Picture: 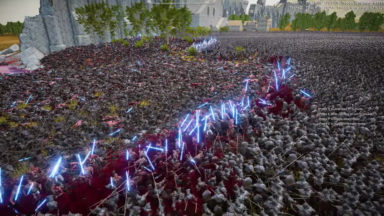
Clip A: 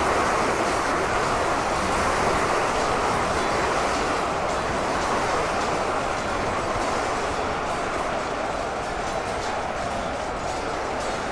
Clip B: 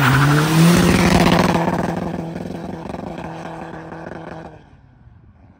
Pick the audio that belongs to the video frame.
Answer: A